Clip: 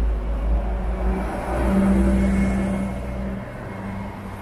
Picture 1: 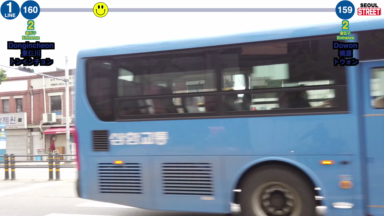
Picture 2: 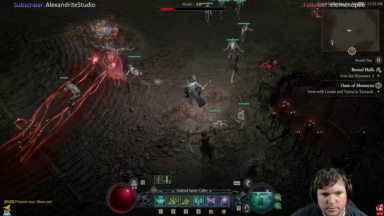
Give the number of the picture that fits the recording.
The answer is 1